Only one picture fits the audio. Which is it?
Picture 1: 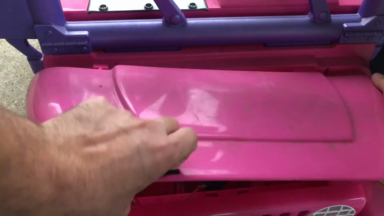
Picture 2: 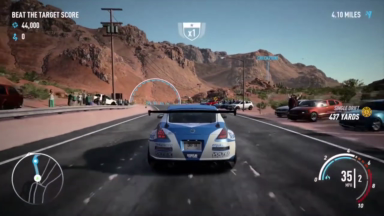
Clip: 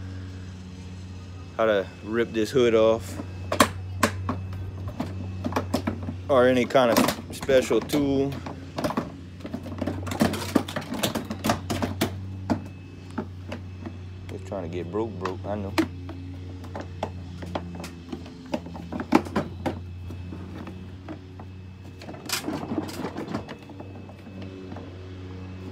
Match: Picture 1